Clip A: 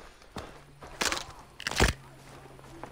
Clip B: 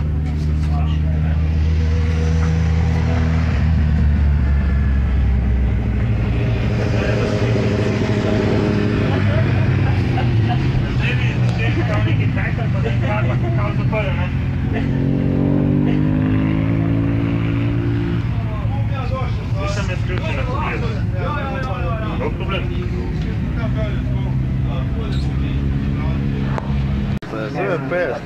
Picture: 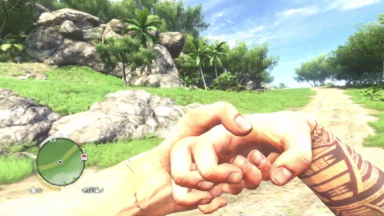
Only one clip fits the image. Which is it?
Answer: A